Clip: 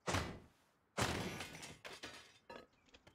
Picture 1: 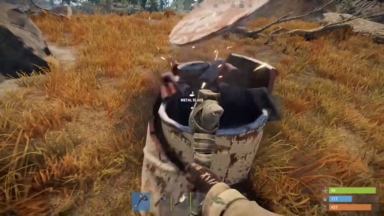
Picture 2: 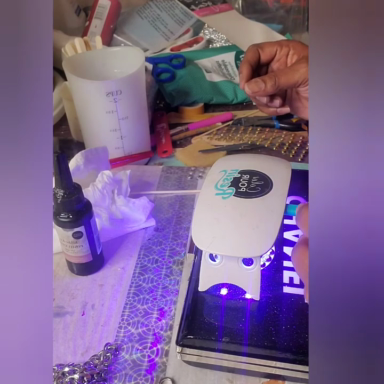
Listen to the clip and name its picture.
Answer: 1